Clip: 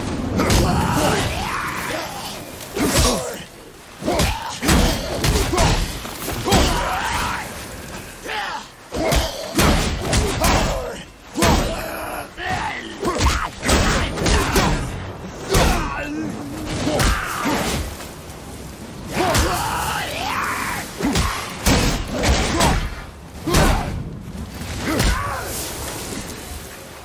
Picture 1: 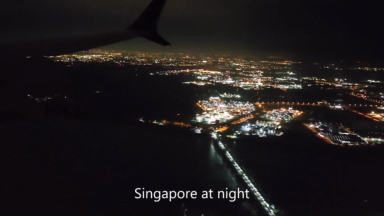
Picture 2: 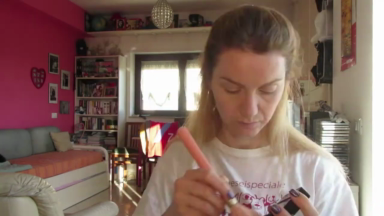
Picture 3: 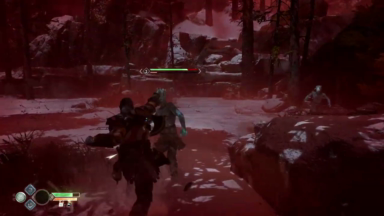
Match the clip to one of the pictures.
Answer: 3